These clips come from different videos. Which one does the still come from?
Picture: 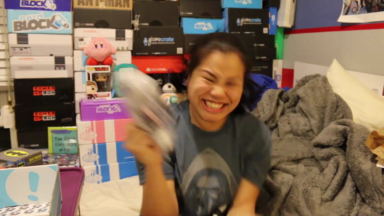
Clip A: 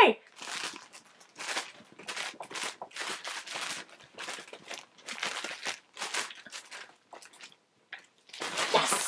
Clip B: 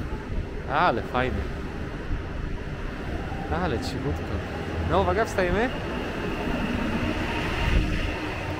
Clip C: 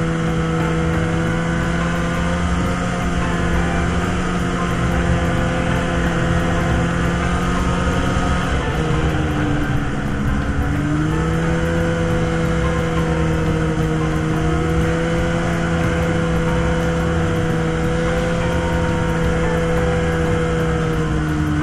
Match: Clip A